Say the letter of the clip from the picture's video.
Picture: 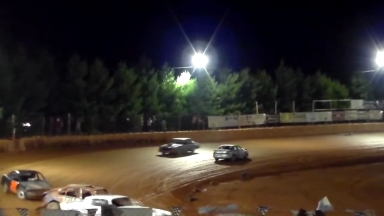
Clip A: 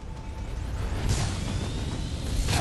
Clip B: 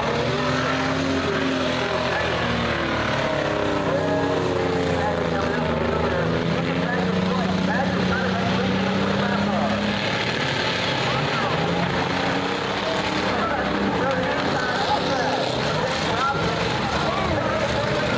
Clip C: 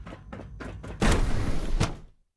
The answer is B